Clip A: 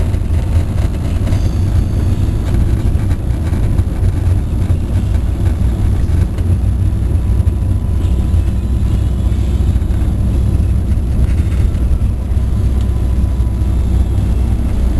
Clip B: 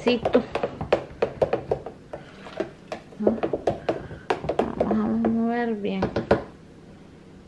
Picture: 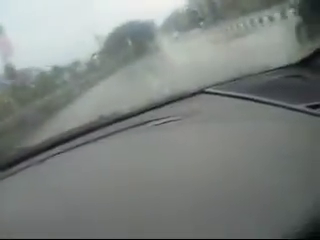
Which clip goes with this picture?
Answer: A